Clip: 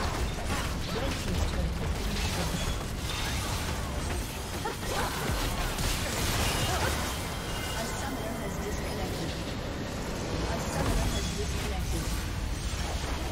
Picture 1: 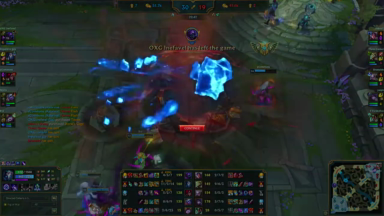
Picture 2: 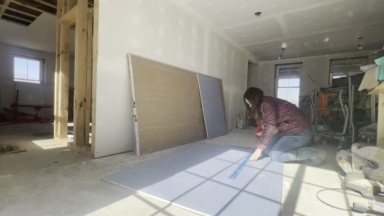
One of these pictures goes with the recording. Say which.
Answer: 1